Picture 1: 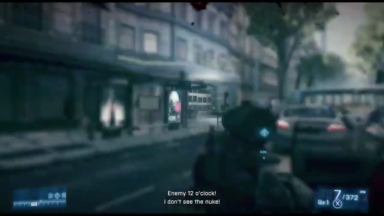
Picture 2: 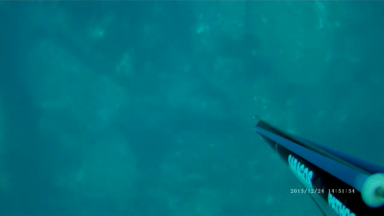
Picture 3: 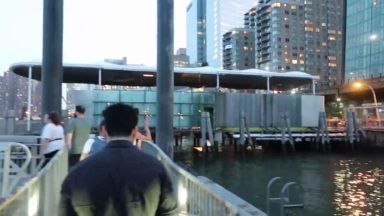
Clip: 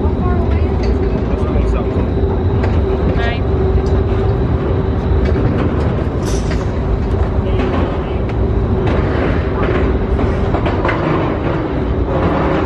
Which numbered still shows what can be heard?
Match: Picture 3